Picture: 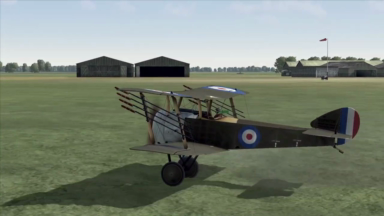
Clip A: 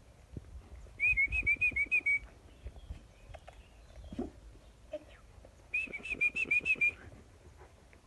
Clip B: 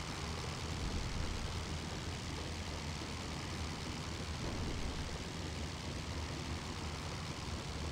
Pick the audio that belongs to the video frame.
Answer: B